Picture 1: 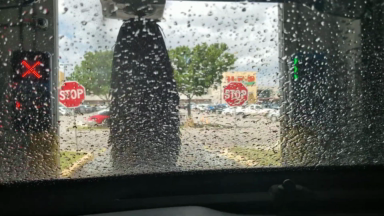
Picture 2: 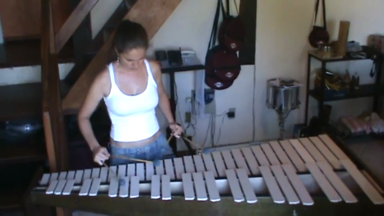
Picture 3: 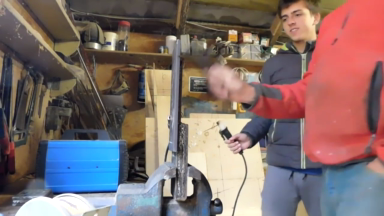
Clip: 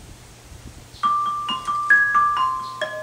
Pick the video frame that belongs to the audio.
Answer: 2